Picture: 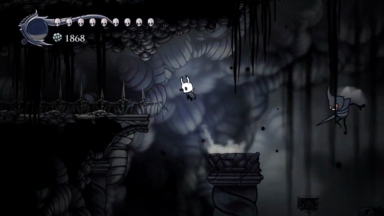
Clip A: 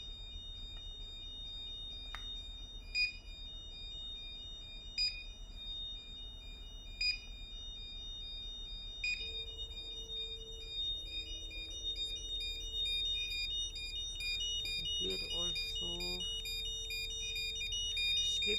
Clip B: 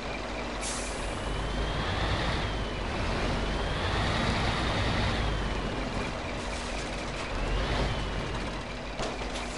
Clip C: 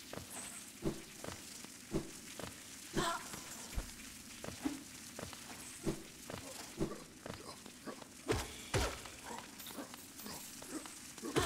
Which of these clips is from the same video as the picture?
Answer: C